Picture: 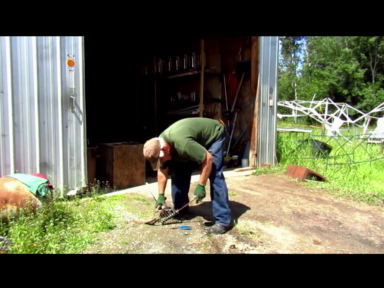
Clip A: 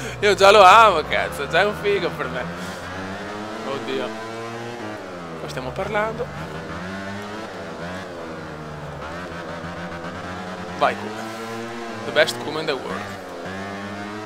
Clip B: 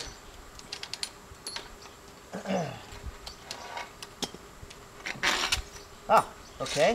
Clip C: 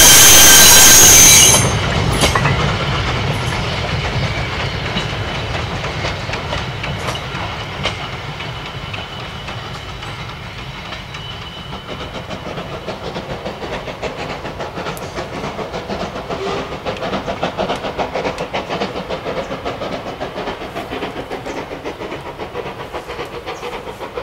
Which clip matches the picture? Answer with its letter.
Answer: B